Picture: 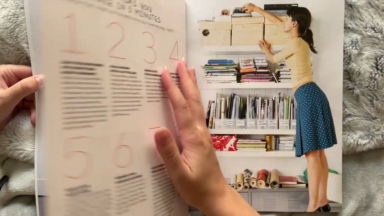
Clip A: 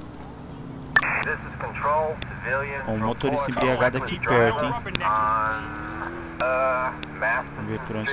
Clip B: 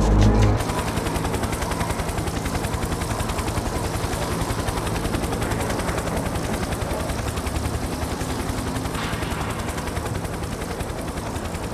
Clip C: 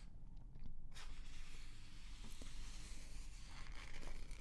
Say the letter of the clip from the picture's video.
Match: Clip C